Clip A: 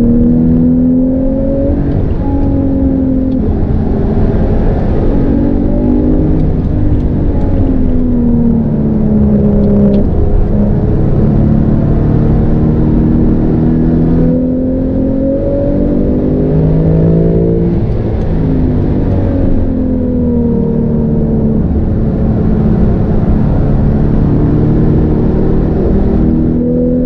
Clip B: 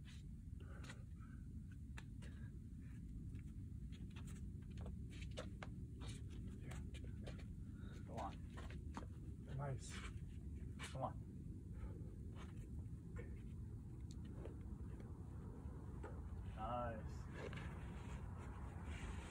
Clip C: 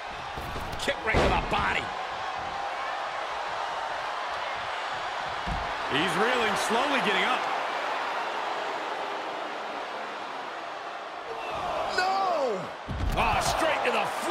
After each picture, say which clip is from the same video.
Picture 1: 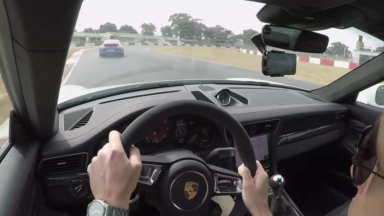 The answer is A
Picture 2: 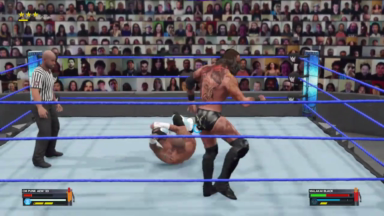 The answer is C